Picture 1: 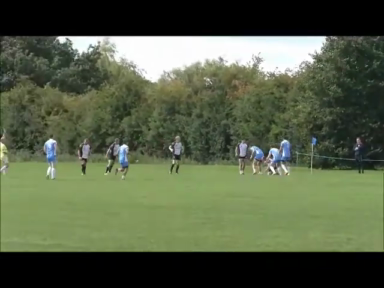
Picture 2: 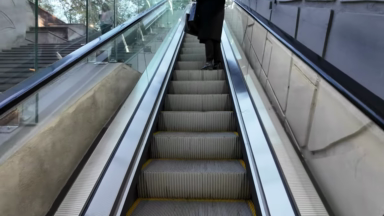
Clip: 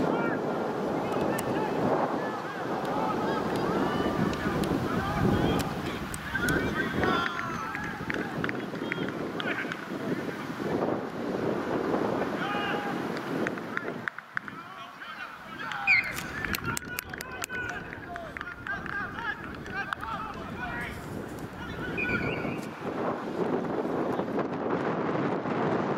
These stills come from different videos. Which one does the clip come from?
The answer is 1